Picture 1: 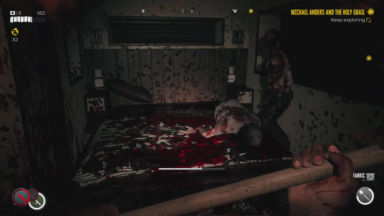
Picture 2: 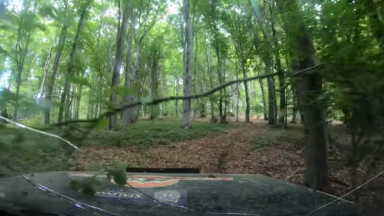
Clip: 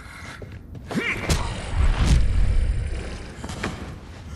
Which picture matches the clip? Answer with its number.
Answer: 1